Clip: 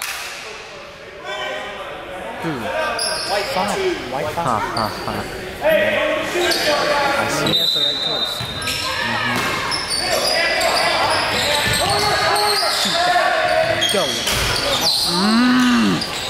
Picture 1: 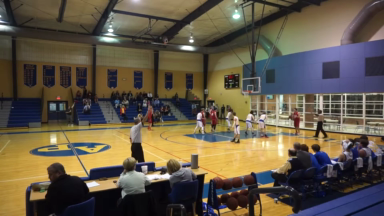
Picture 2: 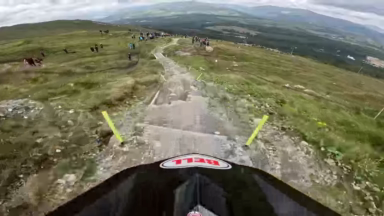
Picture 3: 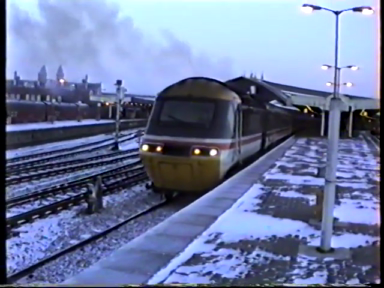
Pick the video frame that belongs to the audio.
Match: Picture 1